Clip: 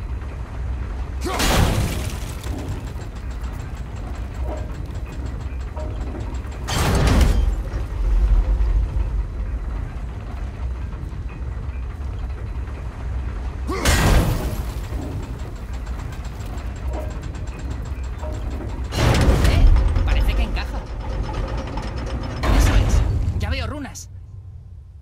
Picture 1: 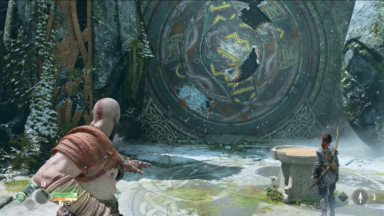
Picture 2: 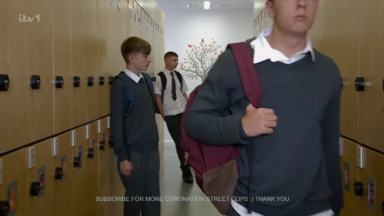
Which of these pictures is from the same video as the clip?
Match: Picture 1